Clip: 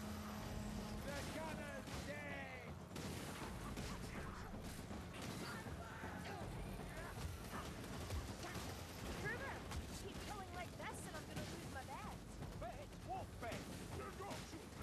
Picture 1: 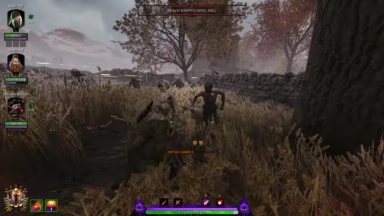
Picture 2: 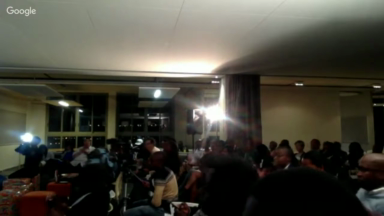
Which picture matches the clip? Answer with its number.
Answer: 1